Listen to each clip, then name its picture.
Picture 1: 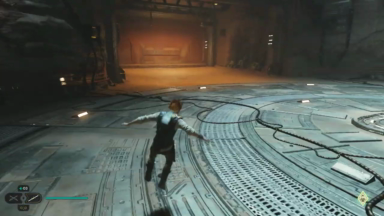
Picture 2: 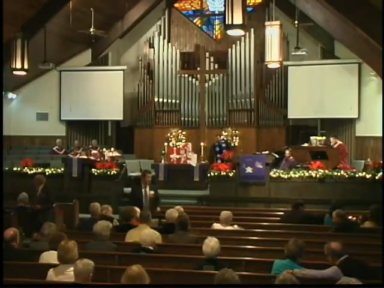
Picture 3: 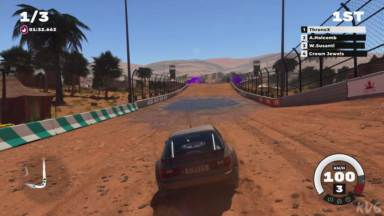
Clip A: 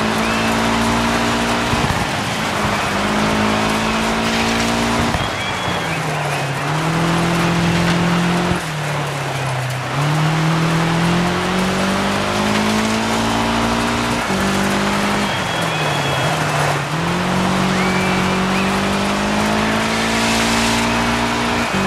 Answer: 3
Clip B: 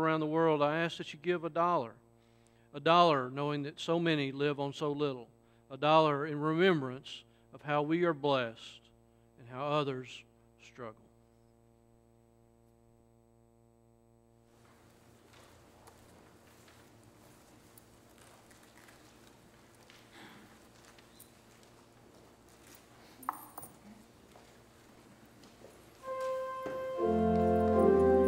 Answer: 2